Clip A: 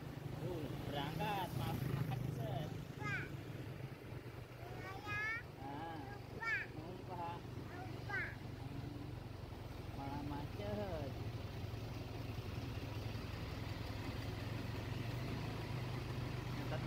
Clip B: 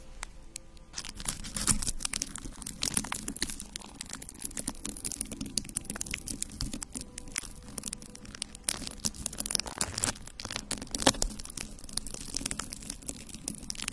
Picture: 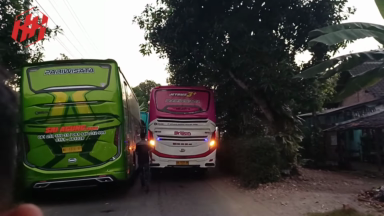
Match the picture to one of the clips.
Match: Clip A